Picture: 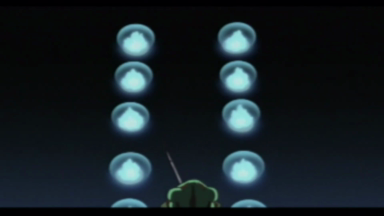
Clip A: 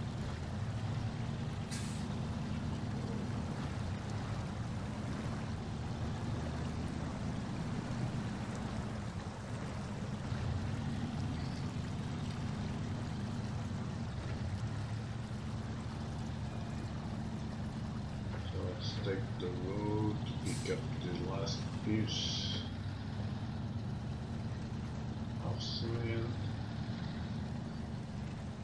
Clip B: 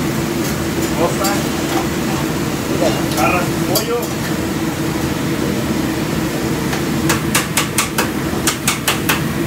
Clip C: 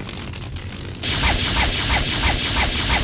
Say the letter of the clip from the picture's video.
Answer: C